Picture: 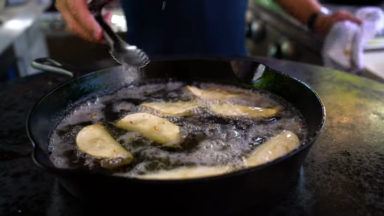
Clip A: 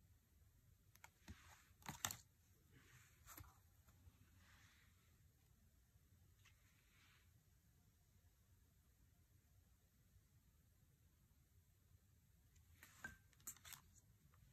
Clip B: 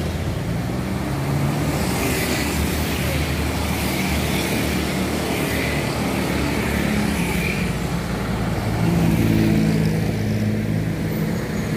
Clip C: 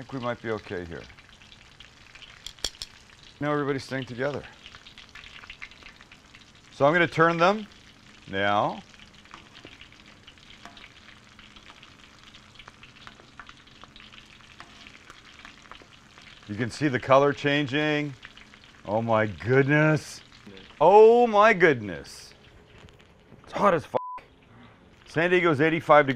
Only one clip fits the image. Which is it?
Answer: C